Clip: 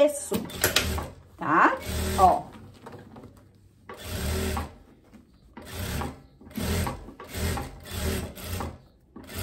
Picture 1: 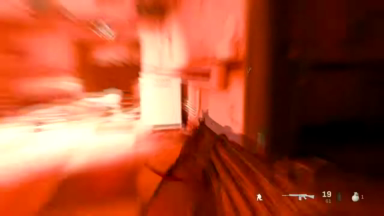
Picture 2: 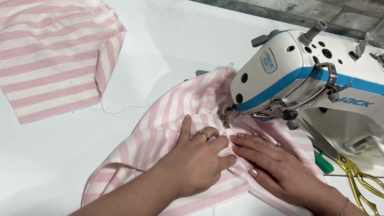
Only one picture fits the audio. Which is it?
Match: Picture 2